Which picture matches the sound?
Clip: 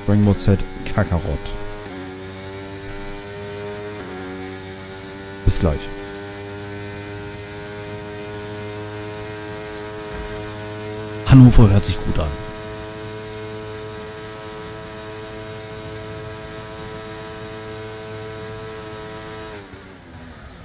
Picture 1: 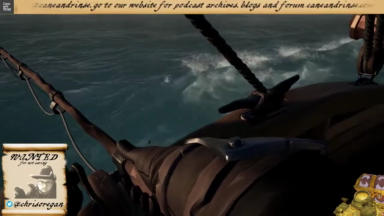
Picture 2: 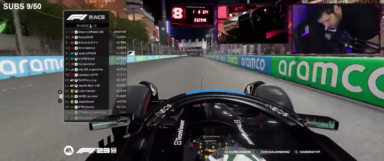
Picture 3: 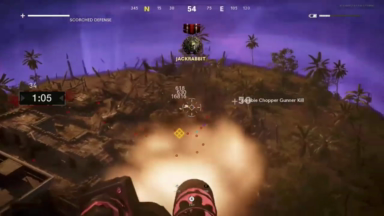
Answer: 2